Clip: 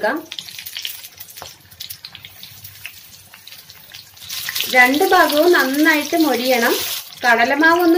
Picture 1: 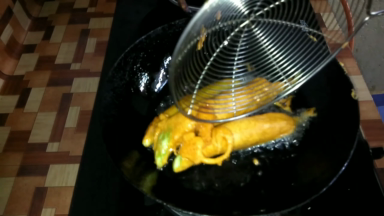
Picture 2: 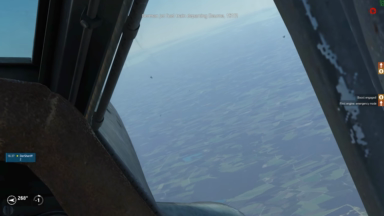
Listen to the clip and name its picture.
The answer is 1